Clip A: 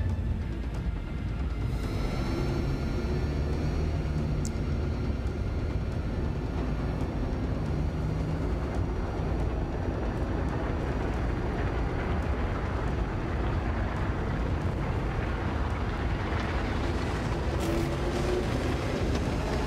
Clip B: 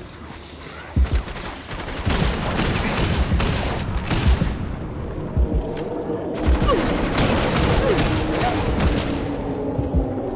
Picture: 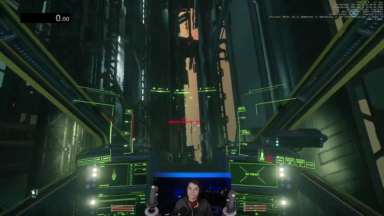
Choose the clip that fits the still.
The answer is A